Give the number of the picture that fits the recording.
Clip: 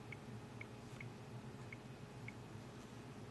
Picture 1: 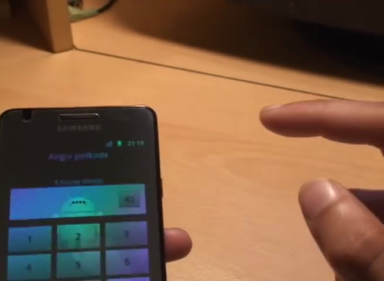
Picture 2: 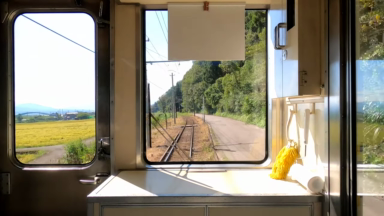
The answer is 1